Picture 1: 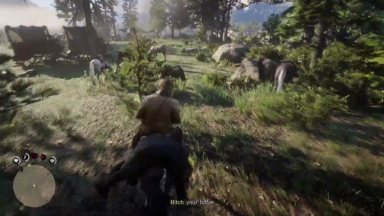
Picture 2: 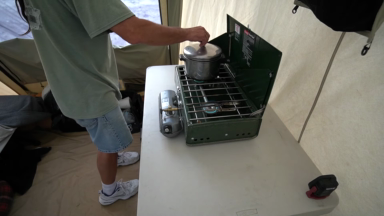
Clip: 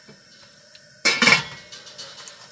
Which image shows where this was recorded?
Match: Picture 2